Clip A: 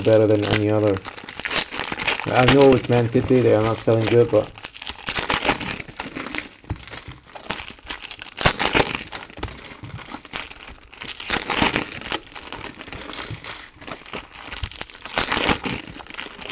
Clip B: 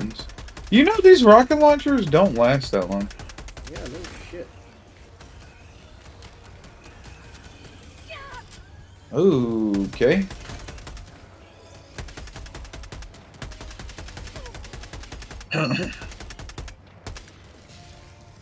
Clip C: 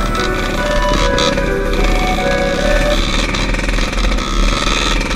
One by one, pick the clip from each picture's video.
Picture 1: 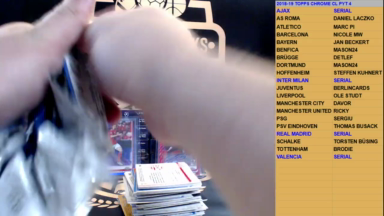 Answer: A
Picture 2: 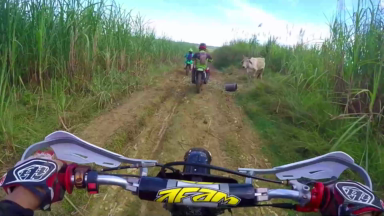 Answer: C